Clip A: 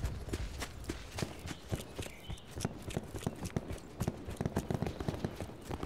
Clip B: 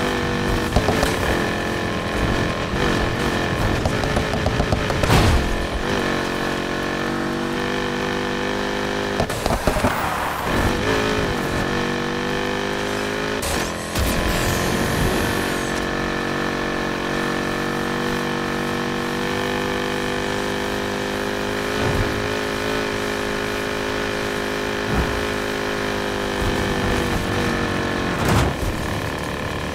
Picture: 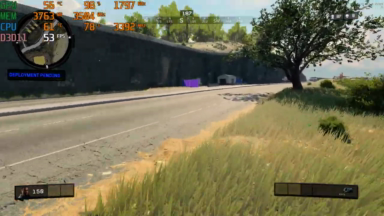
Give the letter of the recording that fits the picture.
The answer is A